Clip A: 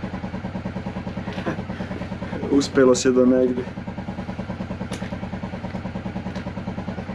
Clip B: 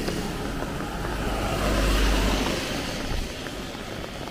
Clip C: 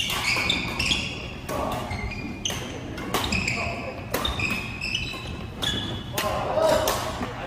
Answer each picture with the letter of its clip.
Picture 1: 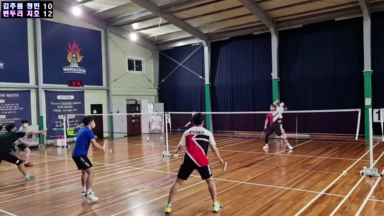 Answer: C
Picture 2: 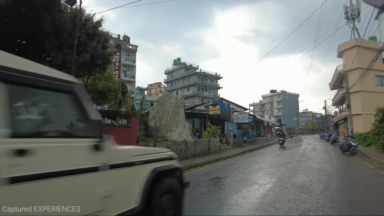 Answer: B